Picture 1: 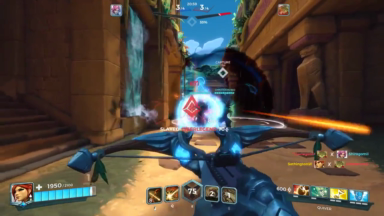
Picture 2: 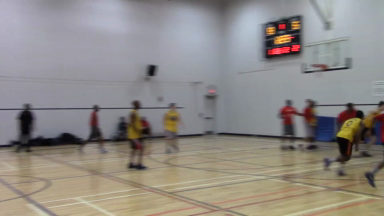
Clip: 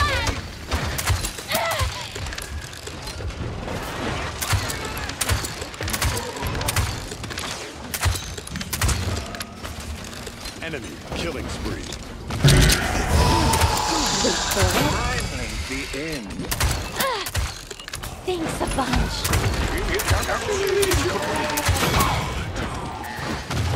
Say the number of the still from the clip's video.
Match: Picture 1